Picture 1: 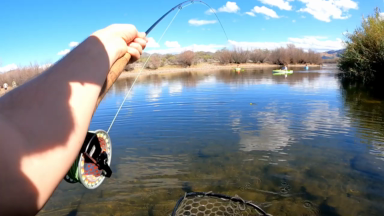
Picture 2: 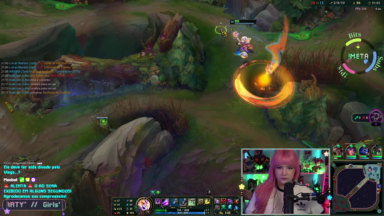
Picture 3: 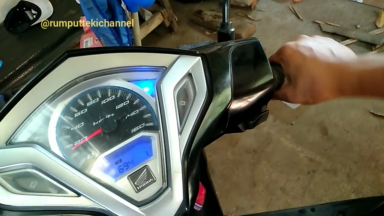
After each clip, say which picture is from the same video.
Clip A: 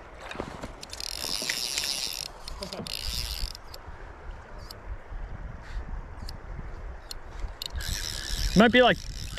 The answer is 1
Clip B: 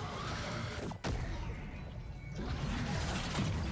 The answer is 2